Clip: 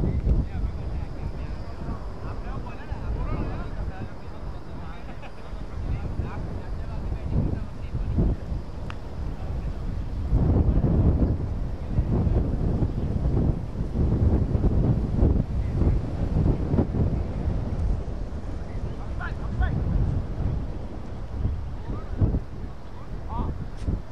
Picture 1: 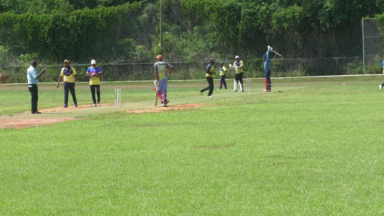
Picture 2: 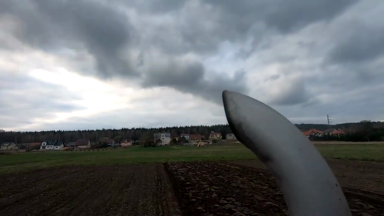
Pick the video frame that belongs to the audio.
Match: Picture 1